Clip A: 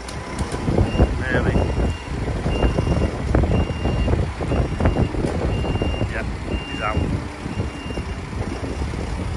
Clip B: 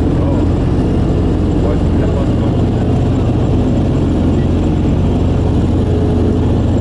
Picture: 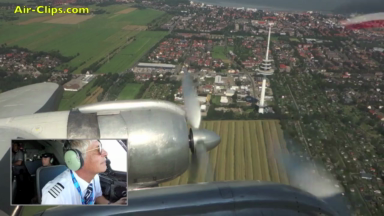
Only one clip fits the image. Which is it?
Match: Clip B